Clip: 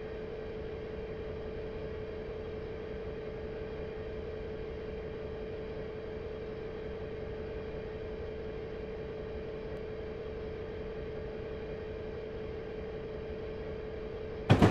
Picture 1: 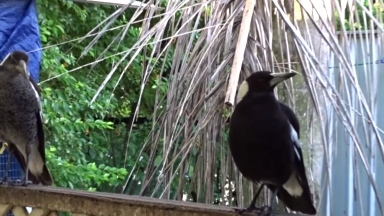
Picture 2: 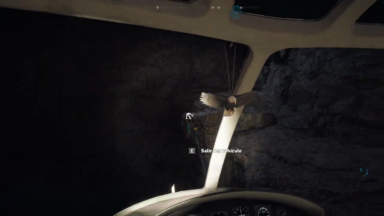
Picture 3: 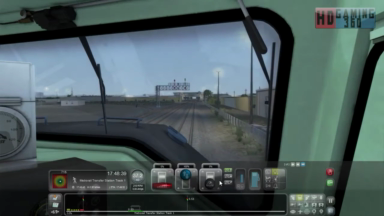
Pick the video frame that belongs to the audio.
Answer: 3